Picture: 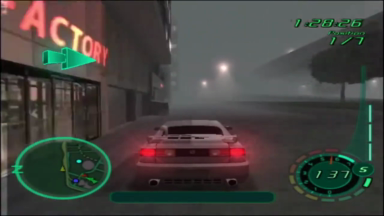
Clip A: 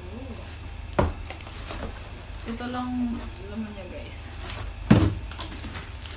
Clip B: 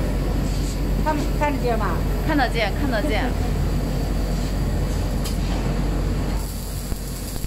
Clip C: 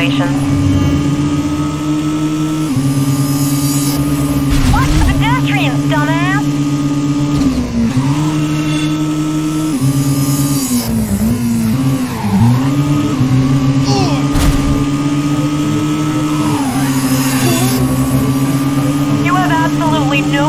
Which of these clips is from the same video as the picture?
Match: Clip C